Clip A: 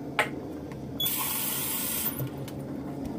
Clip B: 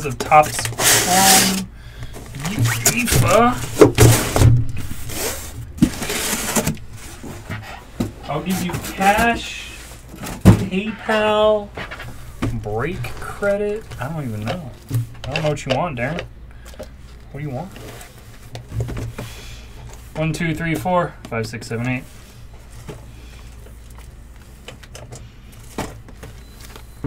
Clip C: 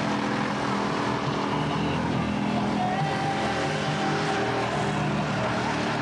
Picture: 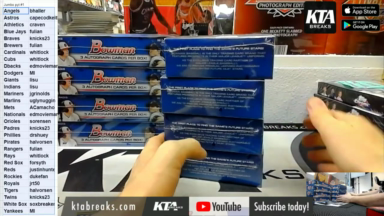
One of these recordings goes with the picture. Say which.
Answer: B